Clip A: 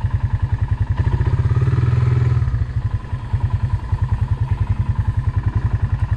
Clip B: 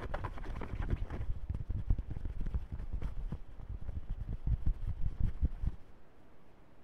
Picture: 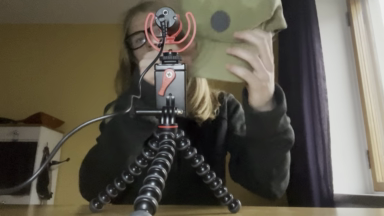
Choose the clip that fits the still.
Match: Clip B